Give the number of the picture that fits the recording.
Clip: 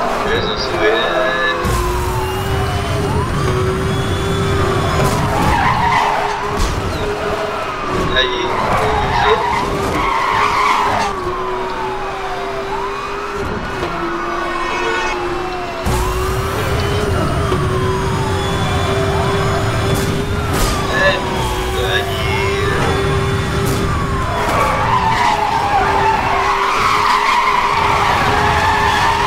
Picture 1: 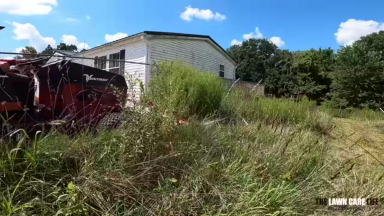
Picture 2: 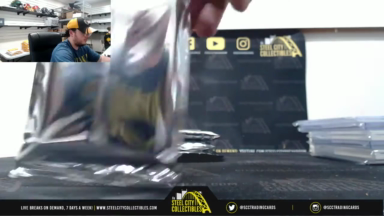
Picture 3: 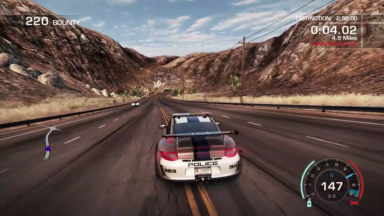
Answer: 3